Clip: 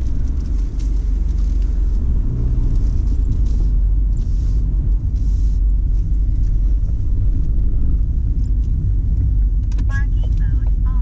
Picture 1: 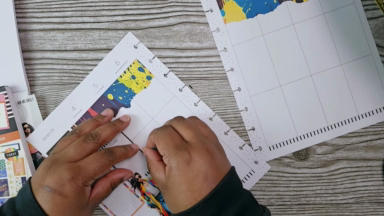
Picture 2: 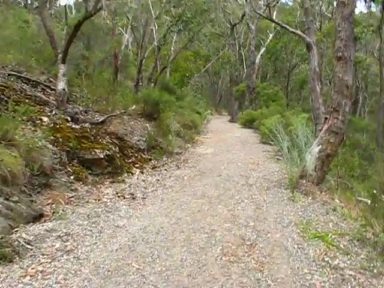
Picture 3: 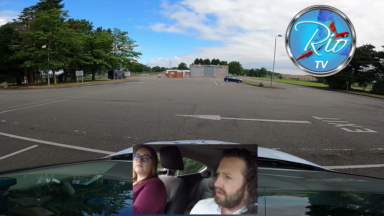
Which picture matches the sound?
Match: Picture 3